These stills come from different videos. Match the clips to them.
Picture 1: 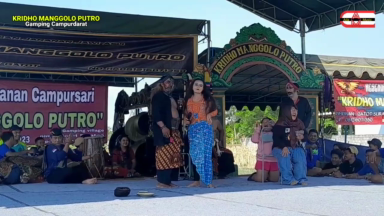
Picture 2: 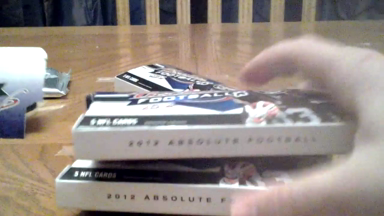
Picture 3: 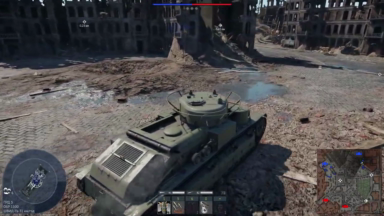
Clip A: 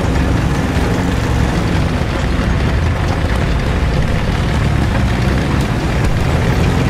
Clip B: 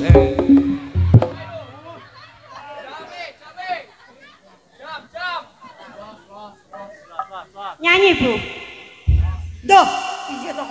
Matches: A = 3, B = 1